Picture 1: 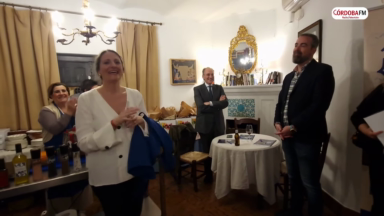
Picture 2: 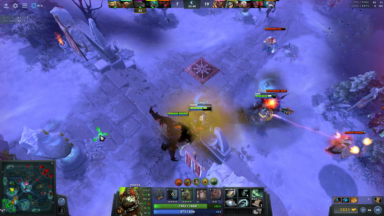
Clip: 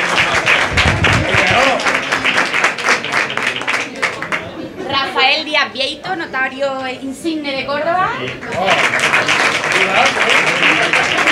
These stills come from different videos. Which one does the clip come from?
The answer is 1